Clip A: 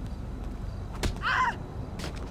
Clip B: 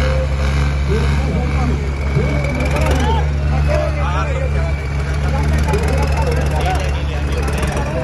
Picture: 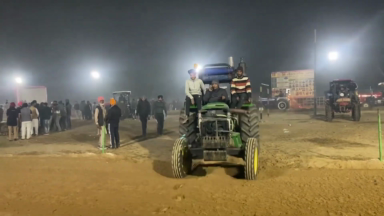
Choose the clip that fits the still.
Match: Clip B